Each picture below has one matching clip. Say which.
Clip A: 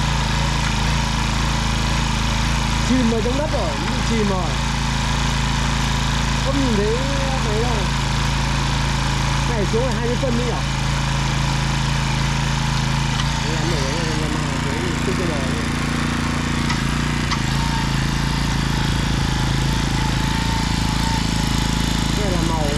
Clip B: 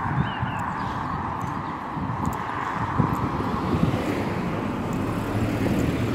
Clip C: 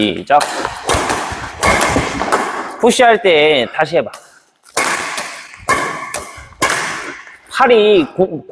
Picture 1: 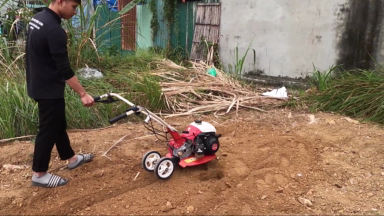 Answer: A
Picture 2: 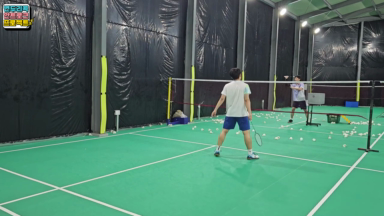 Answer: C